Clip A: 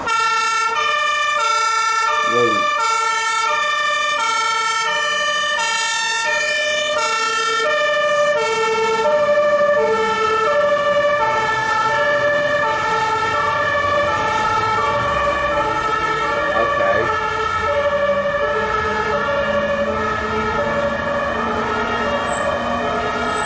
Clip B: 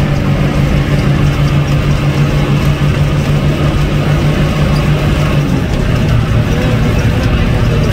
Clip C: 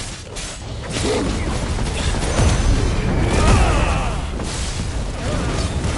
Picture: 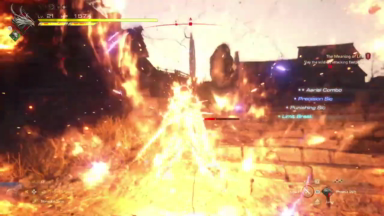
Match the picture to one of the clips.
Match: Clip C